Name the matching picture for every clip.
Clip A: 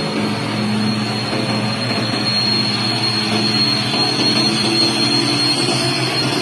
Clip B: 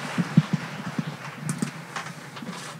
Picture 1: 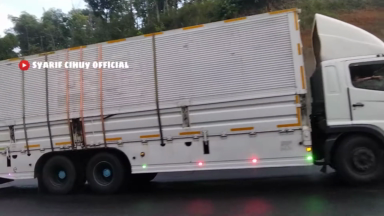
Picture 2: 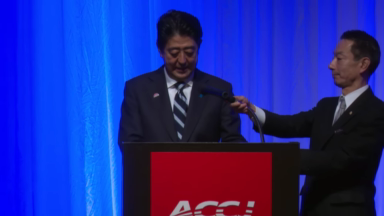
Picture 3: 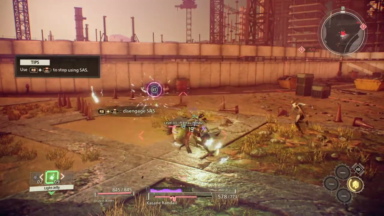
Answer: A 1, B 2